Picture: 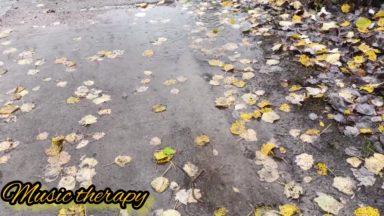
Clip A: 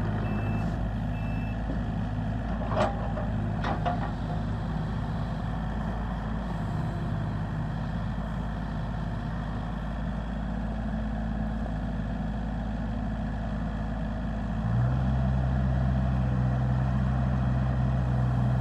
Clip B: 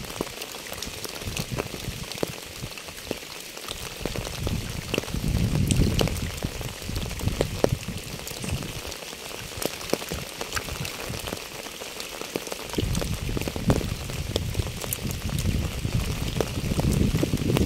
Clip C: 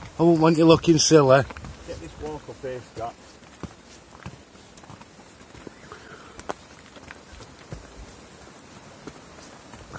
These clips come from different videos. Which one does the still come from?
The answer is B